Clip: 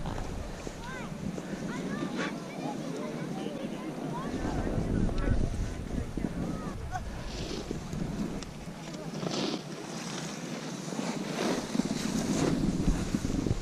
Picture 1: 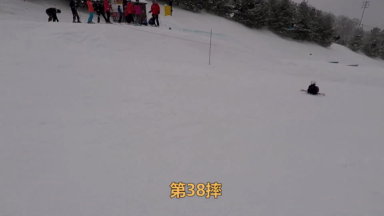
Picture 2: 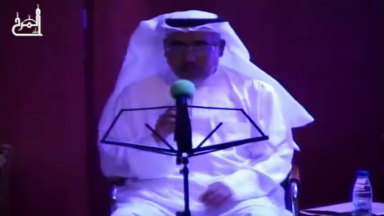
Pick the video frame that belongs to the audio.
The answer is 1